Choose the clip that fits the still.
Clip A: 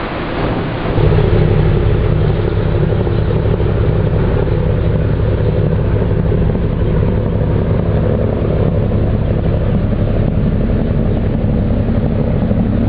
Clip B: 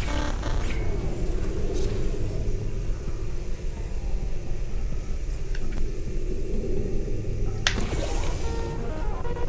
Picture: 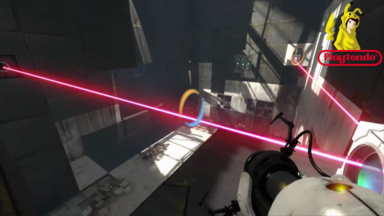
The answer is B